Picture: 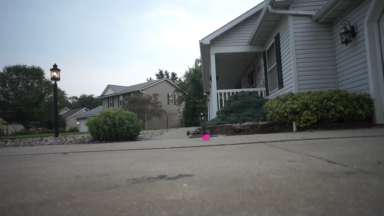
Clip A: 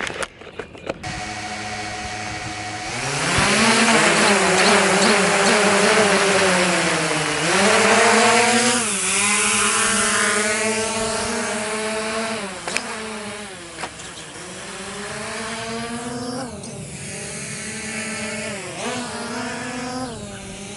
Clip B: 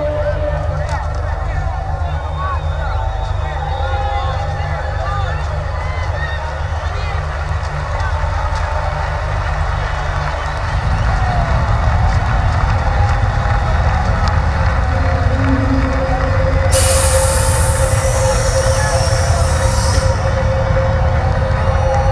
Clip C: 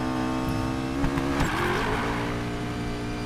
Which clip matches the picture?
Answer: A